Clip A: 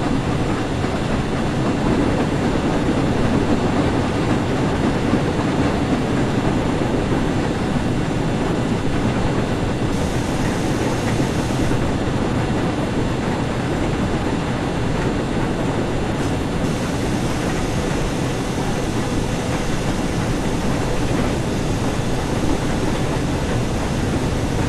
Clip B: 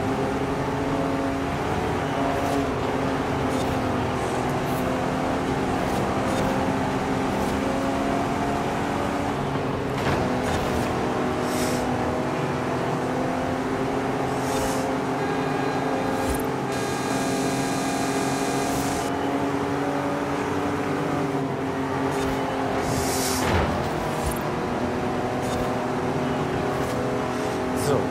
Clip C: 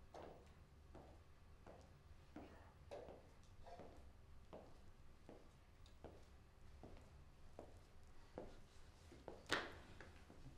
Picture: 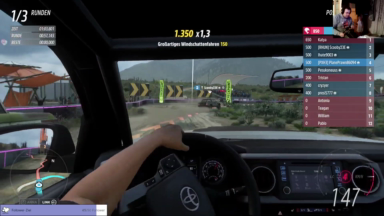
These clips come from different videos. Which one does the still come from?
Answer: B